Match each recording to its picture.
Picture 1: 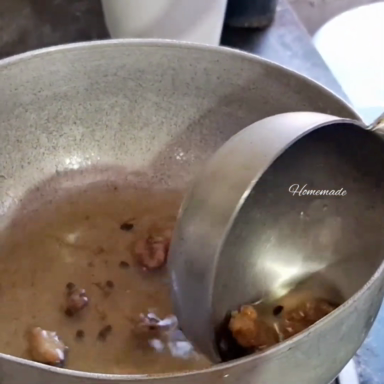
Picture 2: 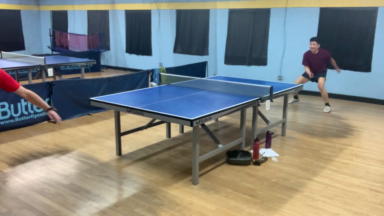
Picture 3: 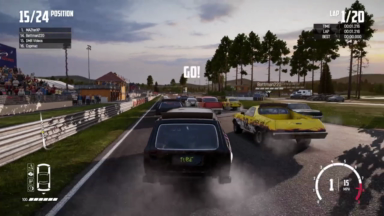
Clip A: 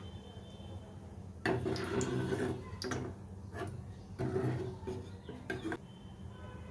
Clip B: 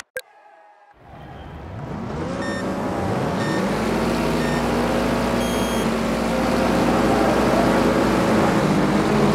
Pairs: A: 1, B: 3